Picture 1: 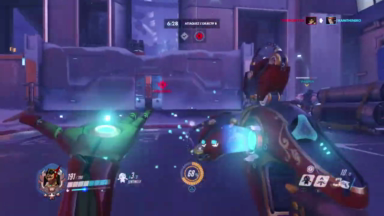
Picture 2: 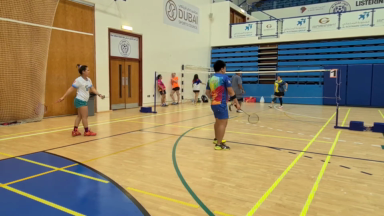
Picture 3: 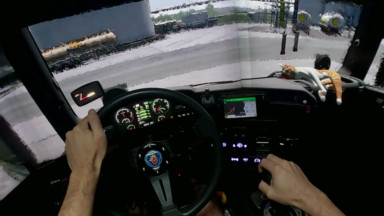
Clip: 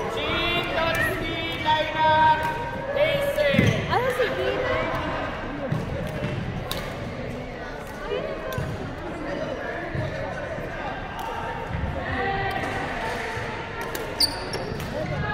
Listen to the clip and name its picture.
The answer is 2